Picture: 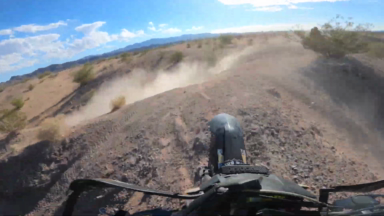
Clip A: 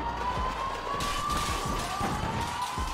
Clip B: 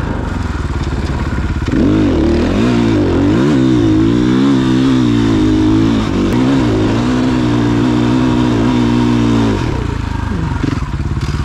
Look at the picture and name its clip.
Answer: B